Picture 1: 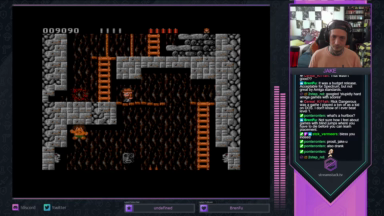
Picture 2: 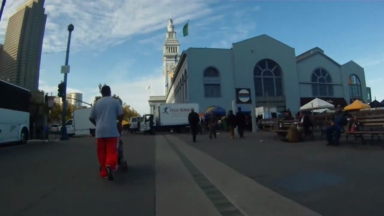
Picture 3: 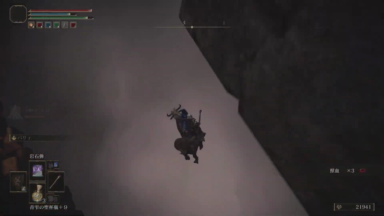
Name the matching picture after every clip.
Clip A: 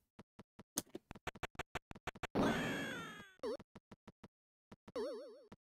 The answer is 1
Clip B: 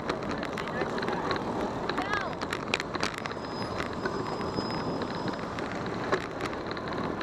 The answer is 2